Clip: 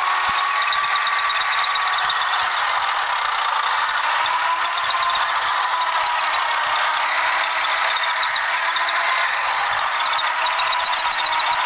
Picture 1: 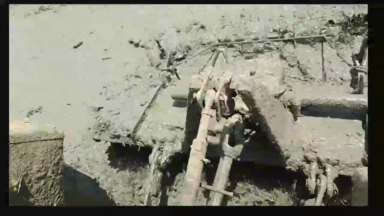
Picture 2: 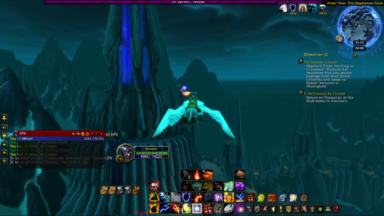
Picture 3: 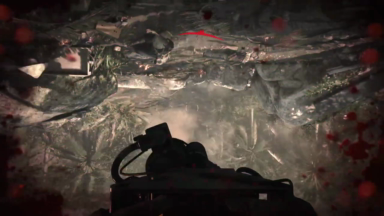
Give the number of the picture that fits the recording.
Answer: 1